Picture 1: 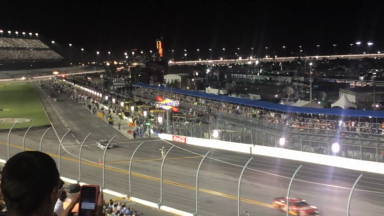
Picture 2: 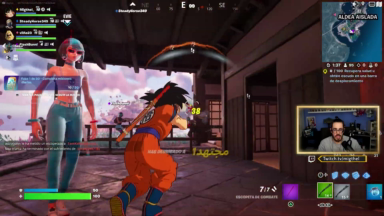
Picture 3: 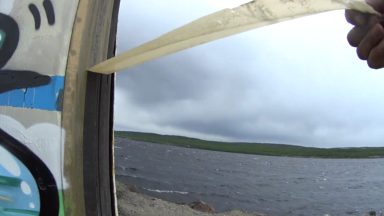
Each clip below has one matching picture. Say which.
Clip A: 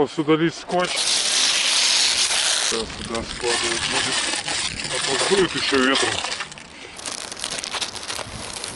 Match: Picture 3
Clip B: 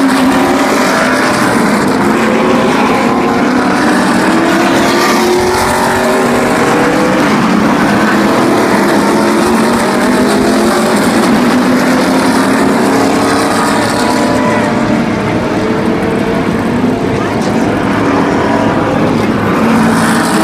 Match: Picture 1